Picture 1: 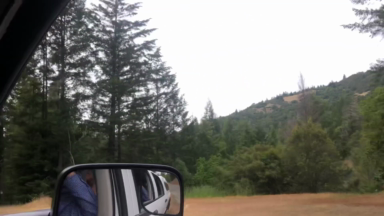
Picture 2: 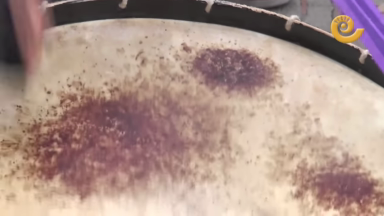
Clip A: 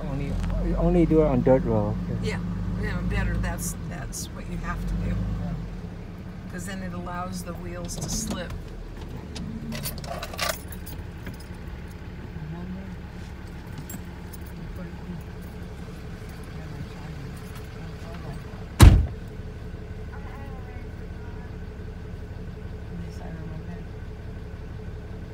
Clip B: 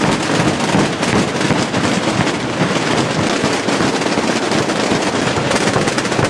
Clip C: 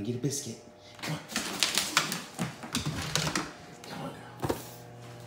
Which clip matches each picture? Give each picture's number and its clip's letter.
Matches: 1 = A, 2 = B